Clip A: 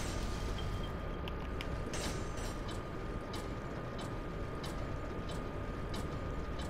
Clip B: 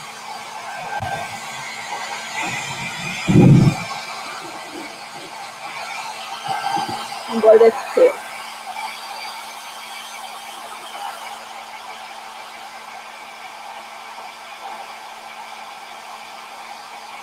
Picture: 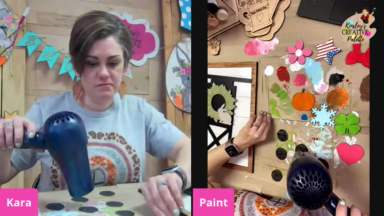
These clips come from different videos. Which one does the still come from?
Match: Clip B